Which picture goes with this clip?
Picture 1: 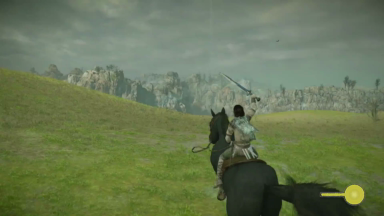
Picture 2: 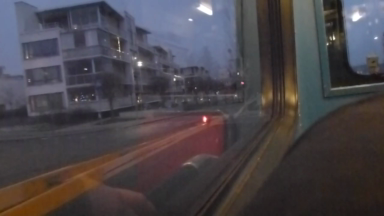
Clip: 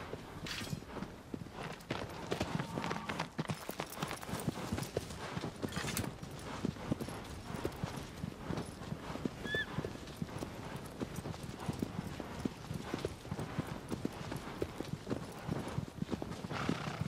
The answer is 1